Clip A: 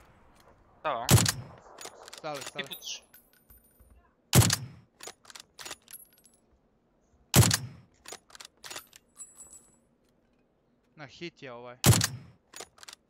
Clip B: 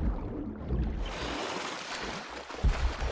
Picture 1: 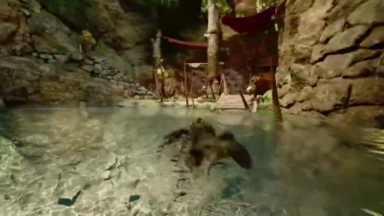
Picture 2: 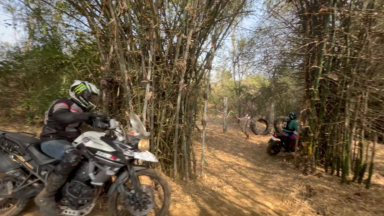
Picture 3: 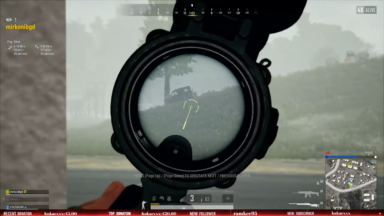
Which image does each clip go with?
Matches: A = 3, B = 1